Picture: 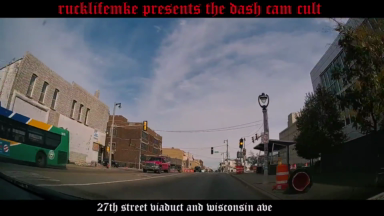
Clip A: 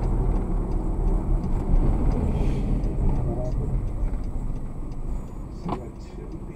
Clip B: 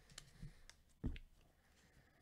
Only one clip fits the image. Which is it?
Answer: A